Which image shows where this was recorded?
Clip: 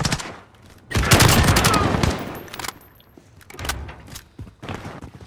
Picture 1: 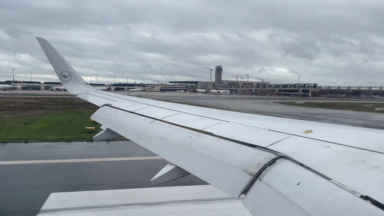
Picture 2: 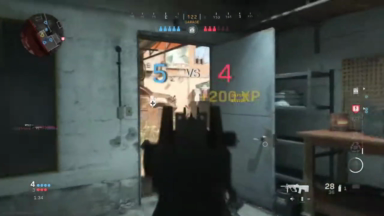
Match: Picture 2